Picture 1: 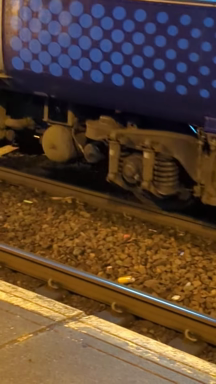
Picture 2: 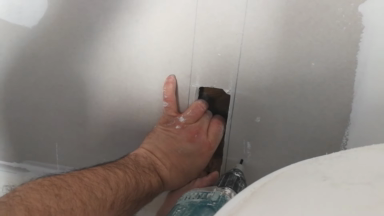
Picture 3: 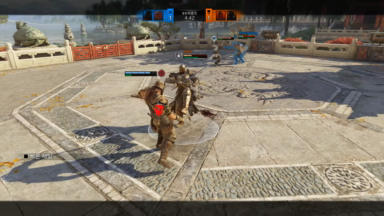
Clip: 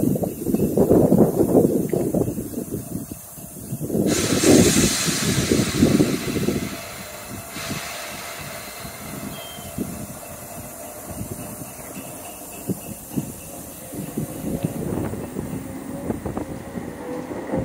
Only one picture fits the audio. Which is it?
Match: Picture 1